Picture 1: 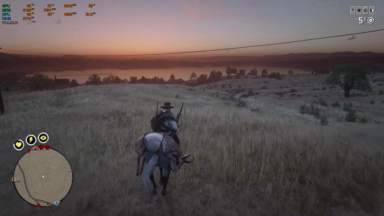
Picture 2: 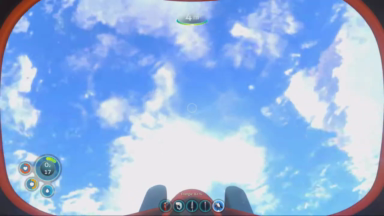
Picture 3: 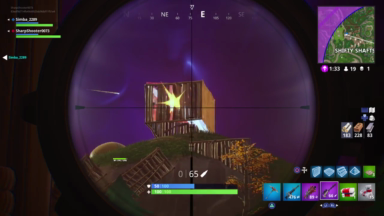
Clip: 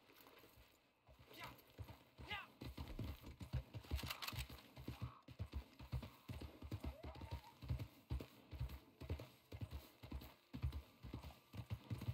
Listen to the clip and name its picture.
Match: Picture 1